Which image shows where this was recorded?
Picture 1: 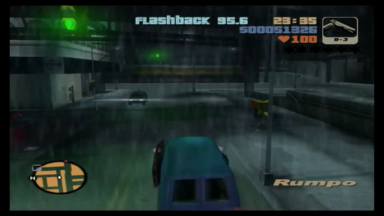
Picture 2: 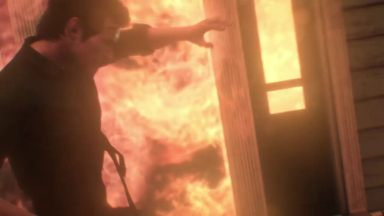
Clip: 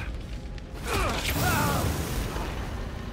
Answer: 2